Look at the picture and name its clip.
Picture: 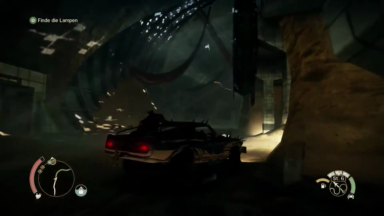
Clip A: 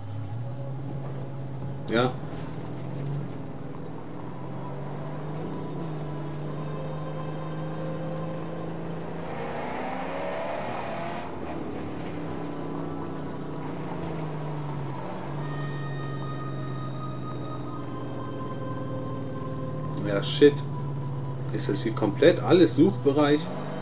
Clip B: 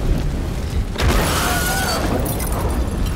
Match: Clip A